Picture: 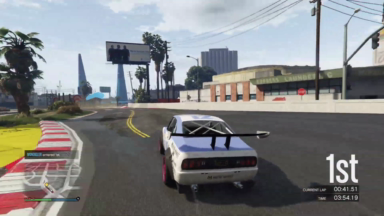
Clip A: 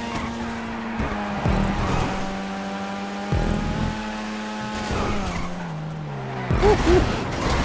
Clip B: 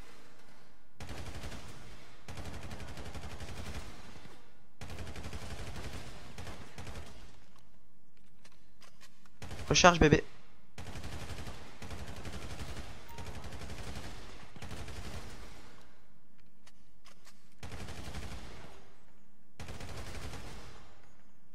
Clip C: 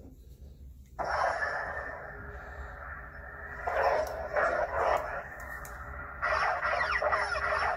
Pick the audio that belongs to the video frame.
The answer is A